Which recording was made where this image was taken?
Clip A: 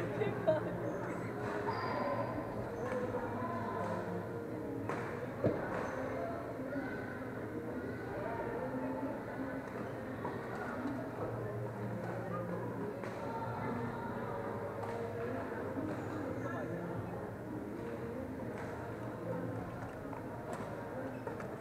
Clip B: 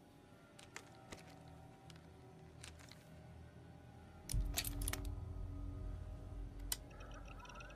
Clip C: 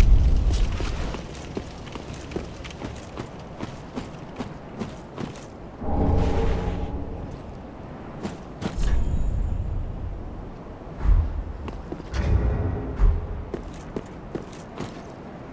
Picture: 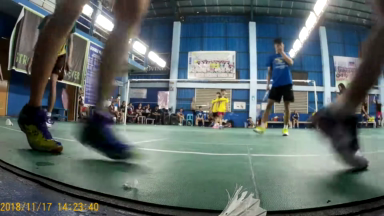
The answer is A